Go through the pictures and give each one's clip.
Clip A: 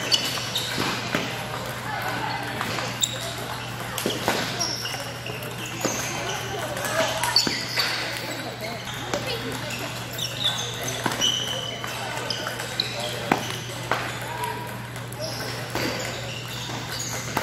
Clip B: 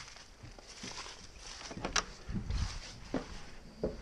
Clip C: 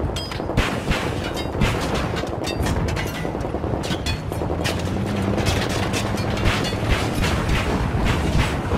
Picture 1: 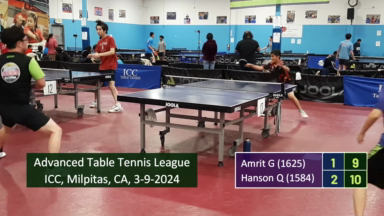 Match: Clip A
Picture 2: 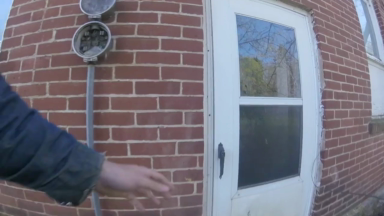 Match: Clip B